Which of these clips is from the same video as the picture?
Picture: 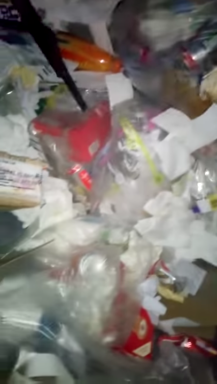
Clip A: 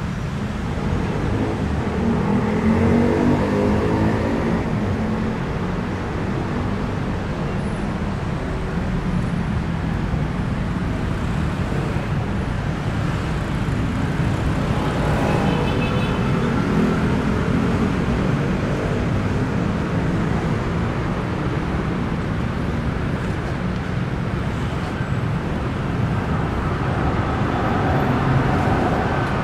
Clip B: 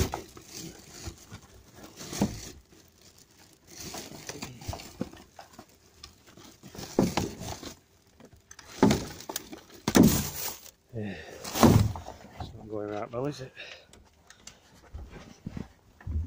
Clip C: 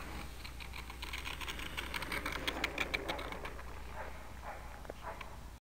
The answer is B